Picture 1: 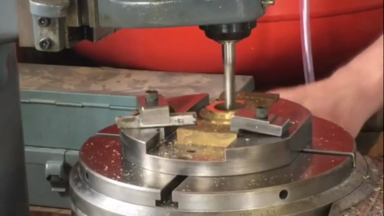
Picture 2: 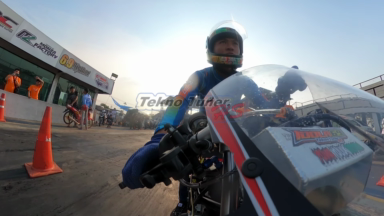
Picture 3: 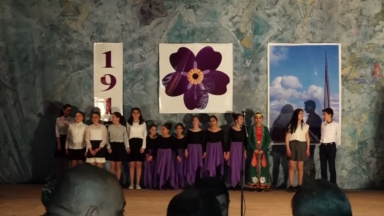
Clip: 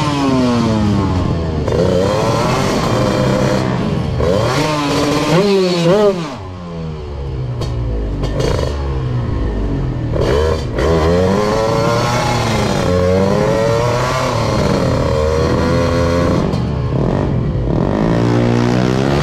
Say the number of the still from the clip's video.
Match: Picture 2